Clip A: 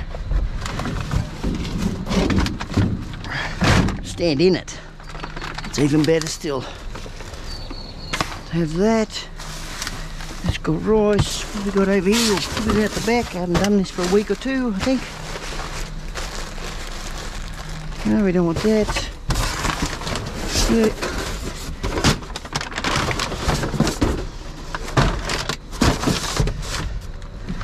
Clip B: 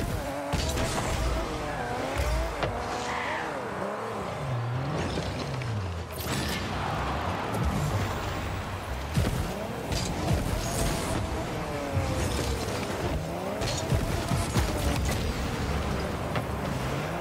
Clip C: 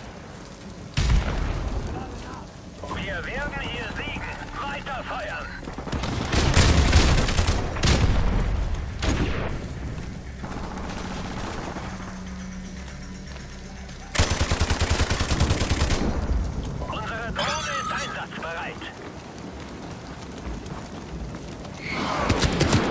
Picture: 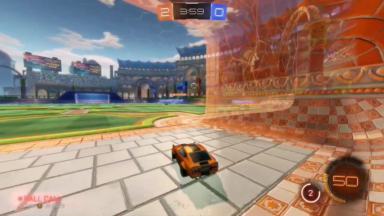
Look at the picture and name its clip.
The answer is B